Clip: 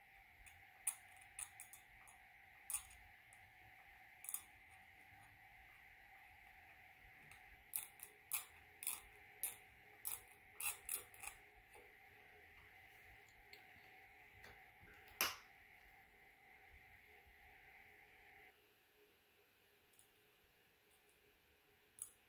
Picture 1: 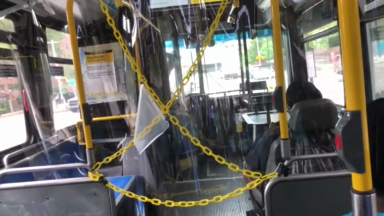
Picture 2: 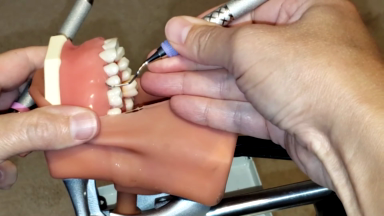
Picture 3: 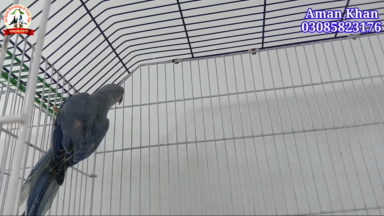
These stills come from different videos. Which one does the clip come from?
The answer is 2